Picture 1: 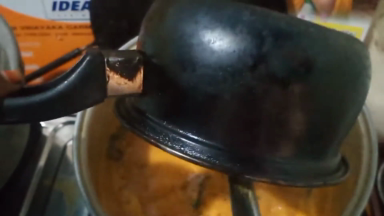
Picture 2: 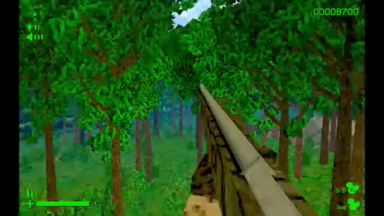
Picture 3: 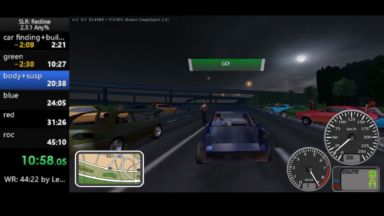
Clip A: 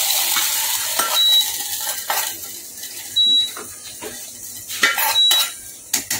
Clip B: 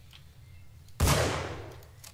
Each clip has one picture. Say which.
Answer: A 1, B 2